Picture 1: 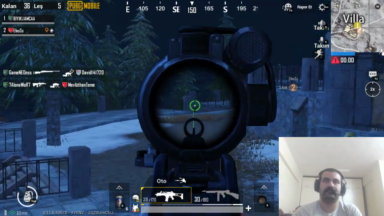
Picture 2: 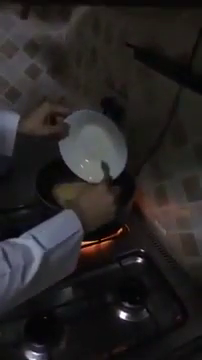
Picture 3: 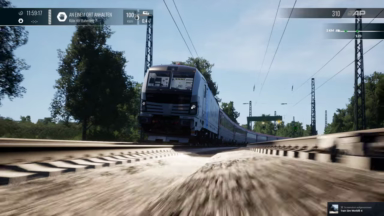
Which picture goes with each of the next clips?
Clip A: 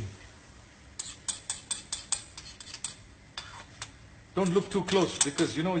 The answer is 2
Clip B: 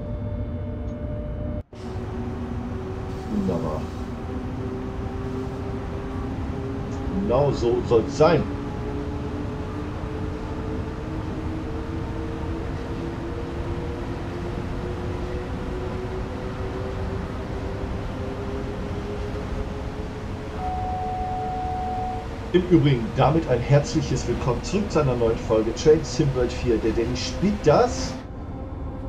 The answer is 3